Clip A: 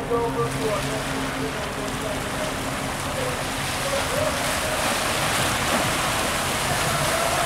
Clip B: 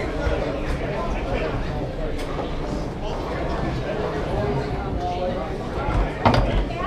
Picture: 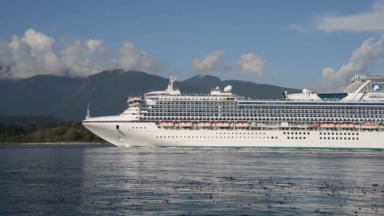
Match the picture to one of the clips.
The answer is A